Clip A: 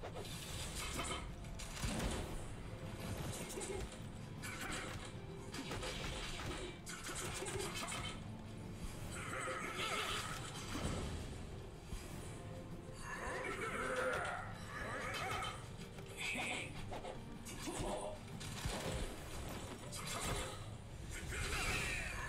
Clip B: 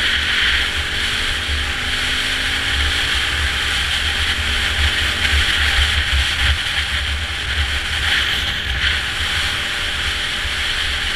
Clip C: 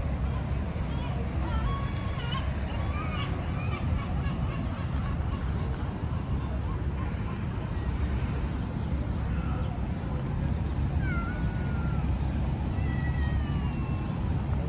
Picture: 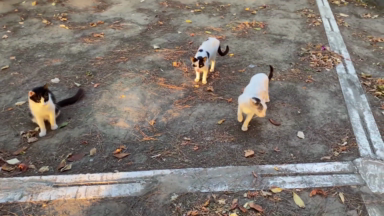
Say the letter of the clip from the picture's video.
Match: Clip C